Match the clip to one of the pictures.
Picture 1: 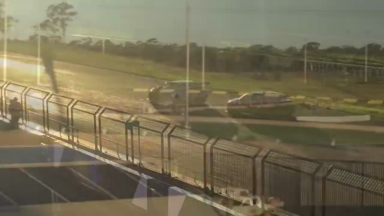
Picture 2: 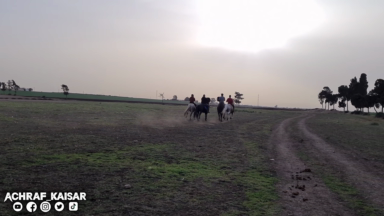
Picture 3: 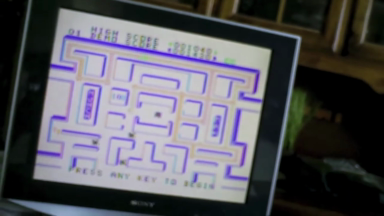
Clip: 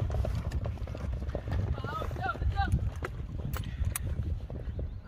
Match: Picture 2